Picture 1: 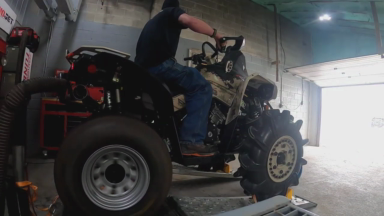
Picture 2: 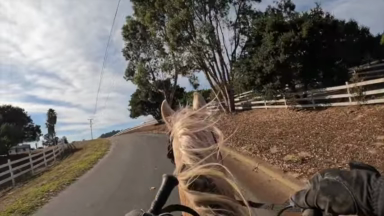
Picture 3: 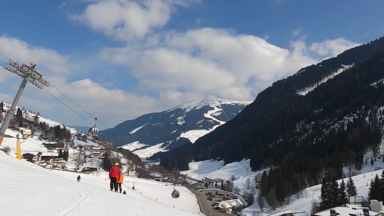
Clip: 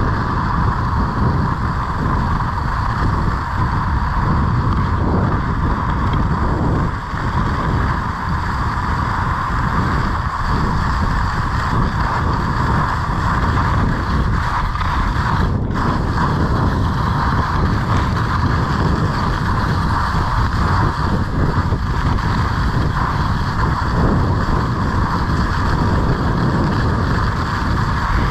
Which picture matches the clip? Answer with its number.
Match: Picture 3